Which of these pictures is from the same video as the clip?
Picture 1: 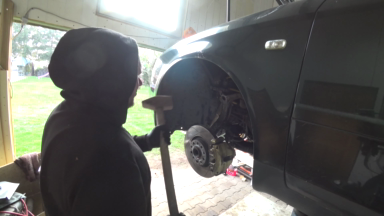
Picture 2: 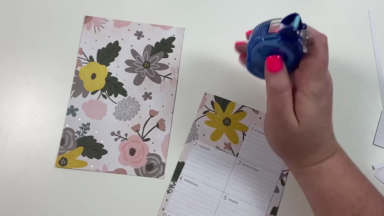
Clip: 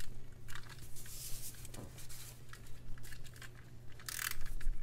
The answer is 2